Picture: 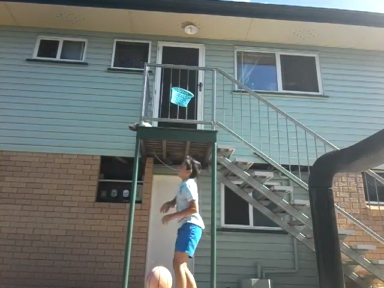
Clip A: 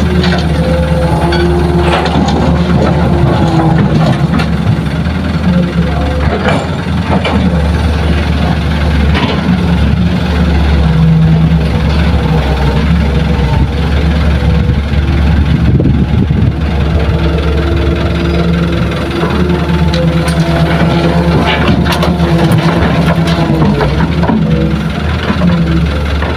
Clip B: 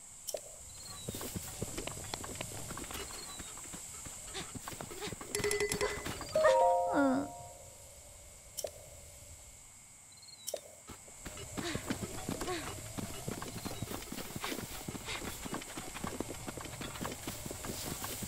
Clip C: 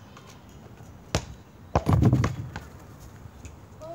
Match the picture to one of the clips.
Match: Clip C